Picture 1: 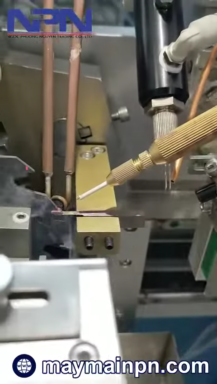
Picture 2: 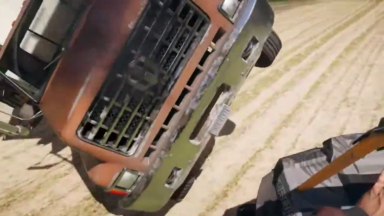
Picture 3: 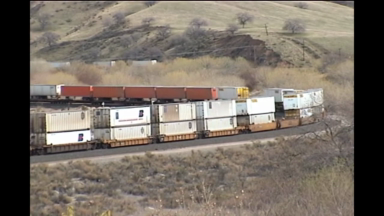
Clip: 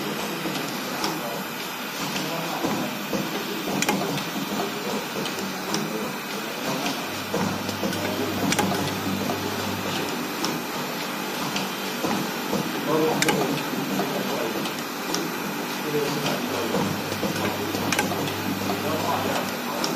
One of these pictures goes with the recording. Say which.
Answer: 1